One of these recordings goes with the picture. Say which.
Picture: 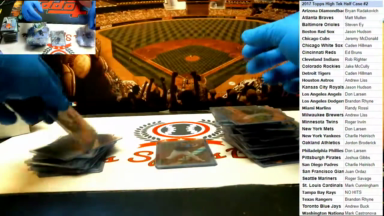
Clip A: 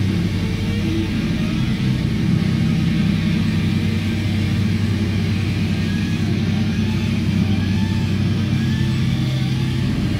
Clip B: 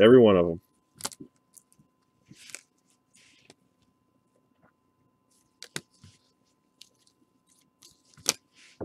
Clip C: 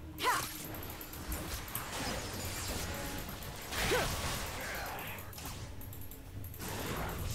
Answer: B